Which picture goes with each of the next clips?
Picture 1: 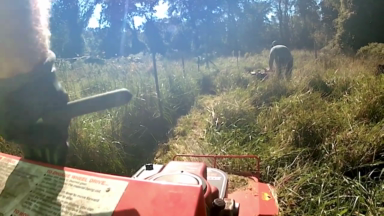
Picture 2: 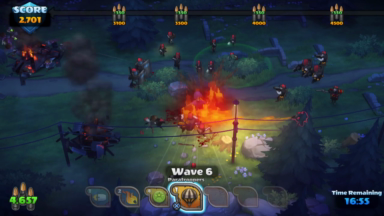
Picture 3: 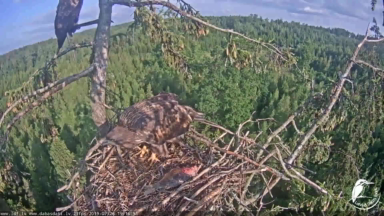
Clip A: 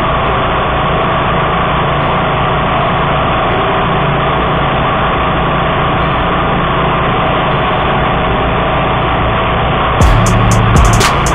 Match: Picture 1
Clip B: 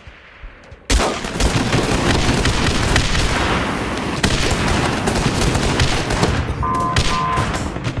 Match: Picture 2